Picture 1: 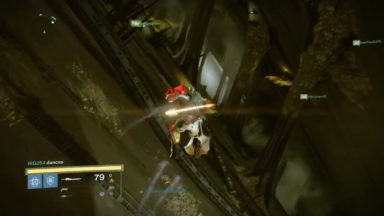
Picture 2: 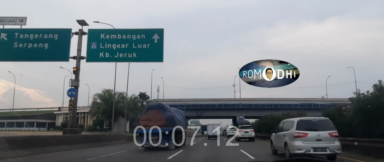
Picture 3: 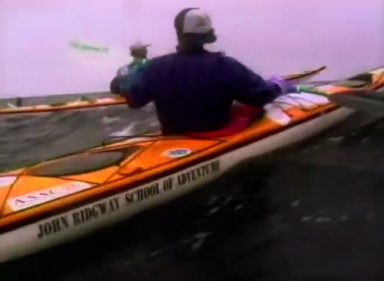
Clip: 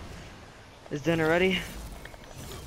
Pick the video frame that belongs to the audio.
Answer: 1